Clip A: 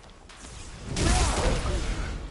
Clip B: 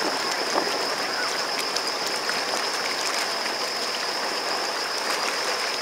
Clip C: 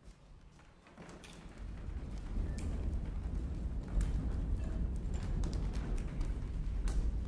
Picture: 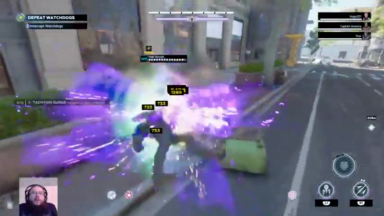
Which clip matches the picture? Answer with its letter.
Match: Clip A